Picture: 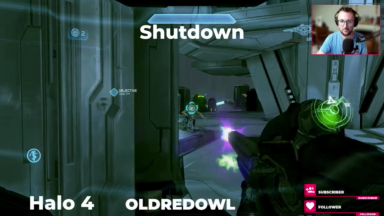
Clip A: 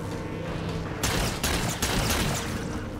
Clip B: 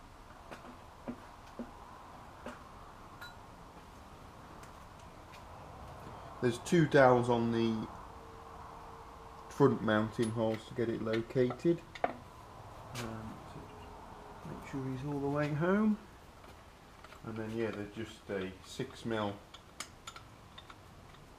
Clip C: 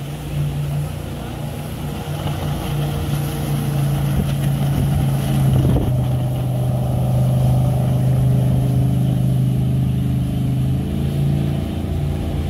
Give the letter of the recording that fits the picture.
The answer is A